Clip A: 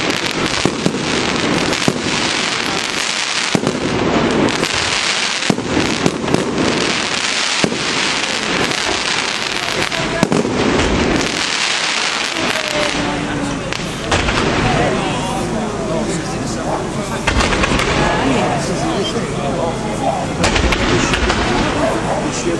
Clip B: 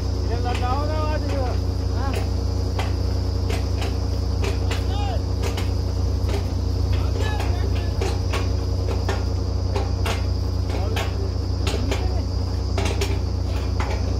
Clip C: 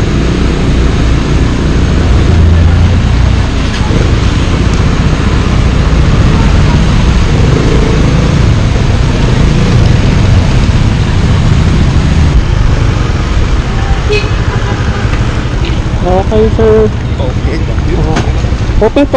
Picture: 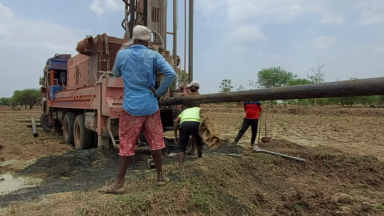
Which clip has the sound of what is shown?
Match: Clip B